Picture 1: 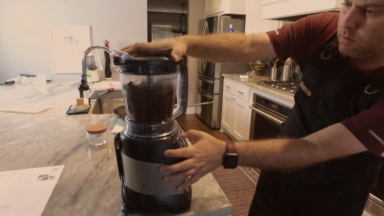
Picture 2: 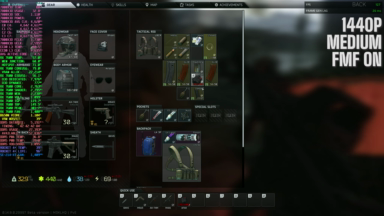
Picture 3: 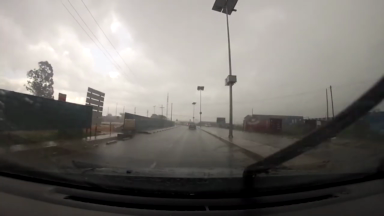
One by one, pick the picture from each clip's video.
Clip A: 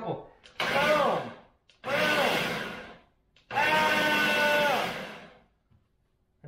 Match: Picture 1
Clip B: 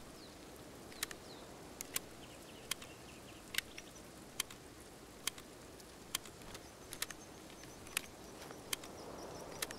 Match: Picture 2